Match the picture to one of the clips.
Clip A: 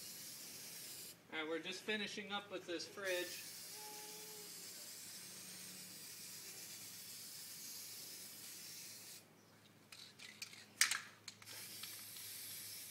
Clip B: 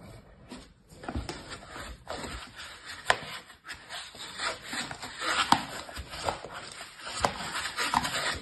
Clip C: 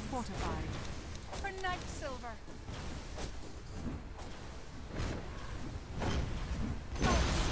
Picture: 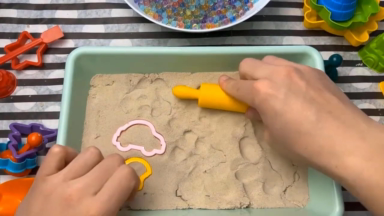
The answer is B